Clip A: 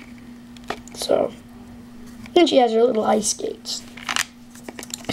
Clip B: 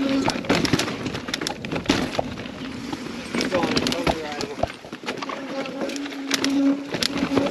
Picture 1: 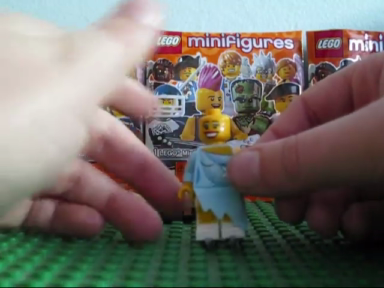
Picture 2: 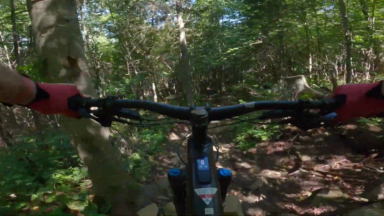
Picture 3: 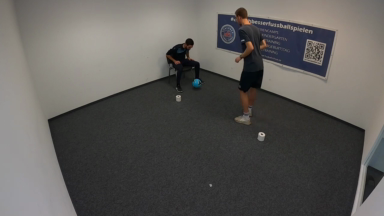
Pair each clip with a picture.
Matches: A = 1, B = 2